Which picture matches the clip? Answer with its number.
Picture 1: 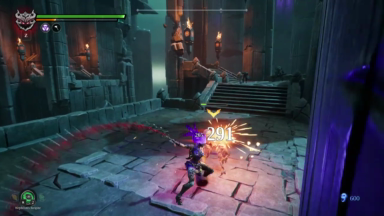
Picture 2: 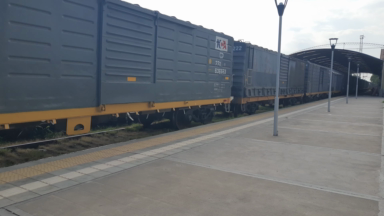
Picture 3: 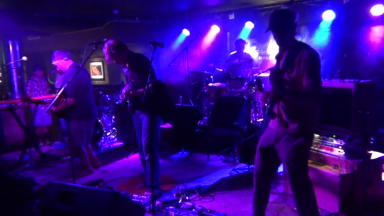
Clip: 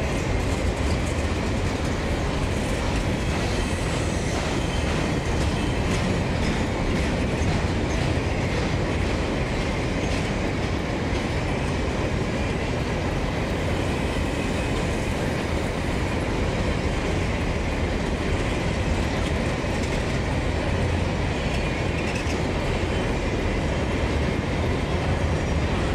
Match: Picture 2